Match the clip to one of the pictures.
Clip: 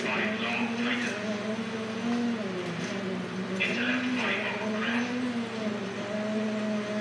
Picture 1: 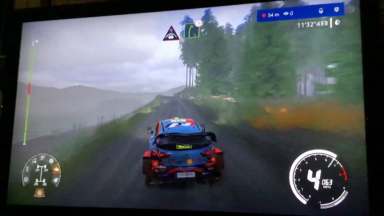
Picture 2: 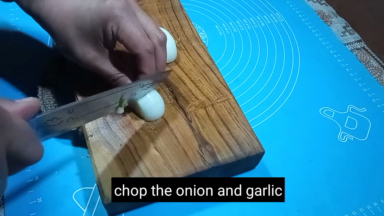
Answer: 1